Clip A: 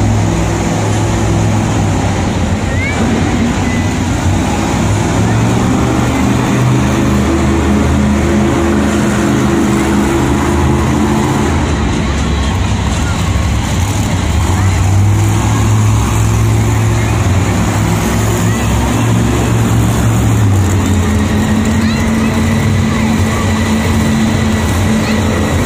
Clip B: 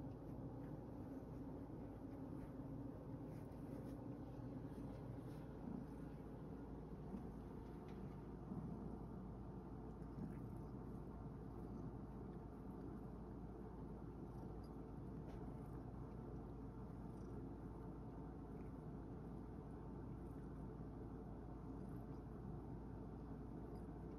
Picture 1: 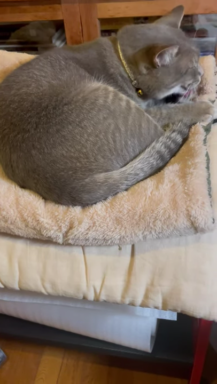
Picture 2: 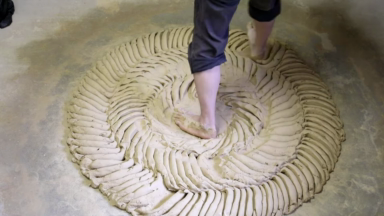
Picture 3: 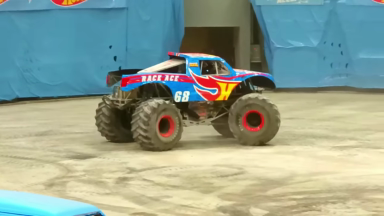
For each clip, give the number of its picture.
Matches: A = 3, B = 1